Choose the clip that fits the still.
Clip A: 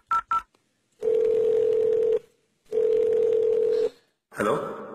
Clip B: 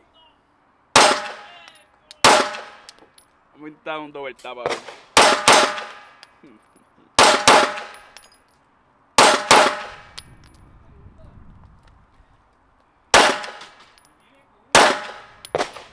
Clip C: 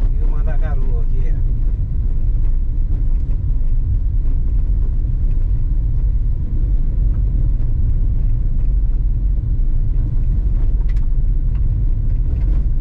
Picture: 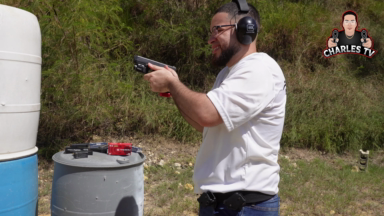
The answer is B